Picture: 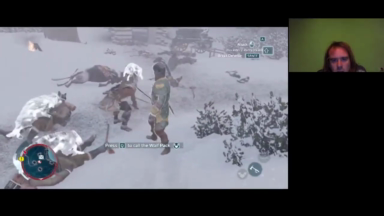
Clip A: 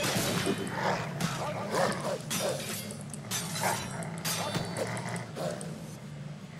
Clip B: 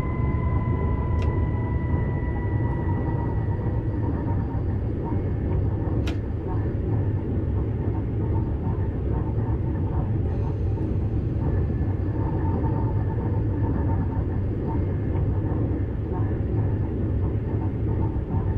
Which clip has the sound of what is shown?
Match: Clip A